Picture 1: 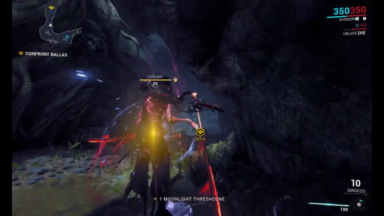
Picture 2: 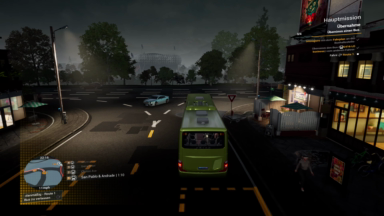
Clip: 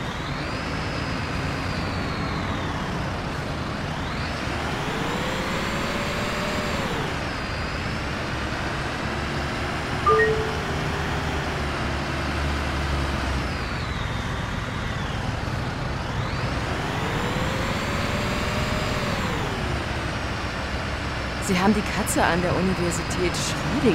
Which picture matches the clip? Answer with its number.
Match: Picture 2